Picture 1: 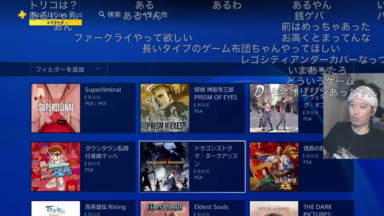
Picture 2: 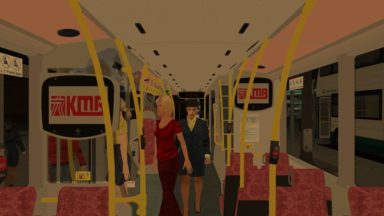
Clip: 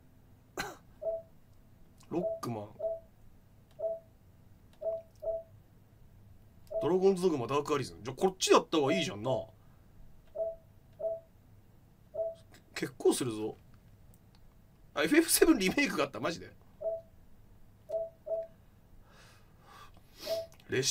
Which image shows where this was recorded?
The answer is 1